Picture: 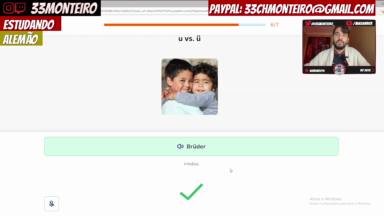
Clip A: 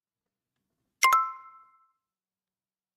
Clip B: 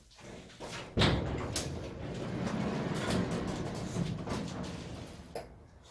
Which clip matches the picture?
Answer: A